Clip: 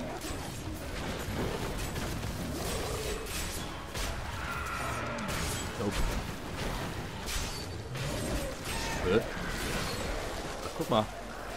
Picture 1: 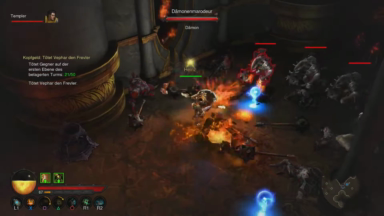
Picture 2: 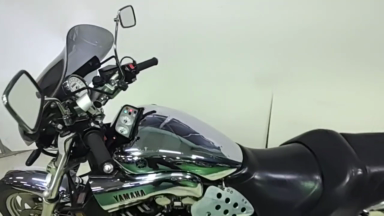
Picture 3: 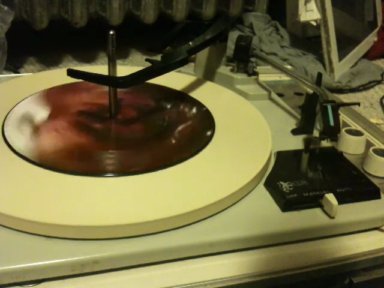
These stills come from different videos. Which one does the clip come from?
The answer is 1